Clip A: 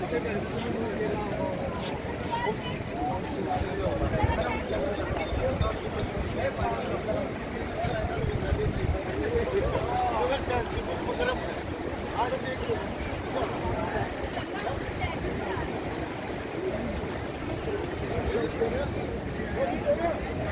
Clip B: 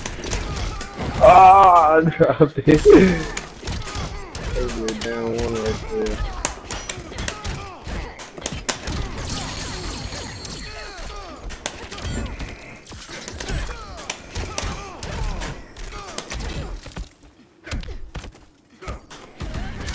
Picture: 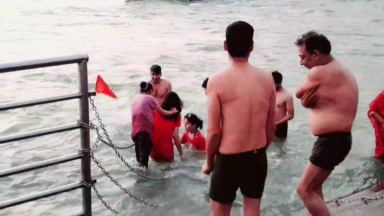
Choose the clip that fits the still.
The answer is A